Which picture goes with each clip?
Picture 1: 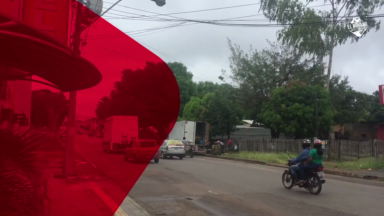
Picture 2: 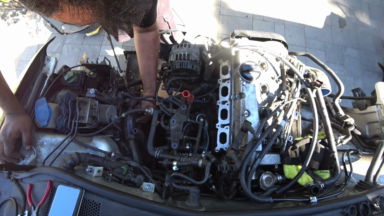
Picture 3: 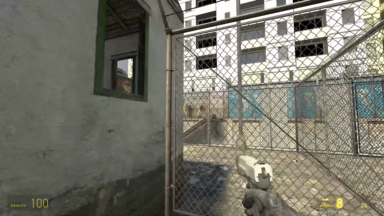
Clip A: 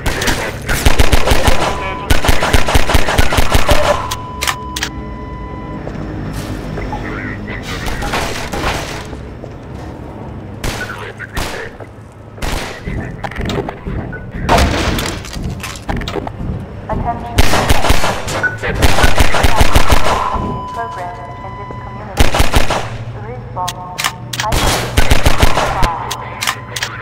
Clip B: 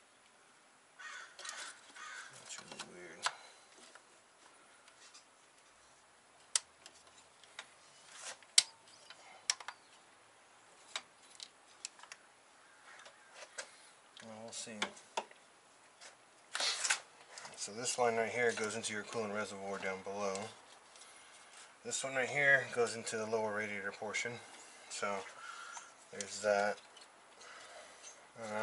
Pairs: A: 3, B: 2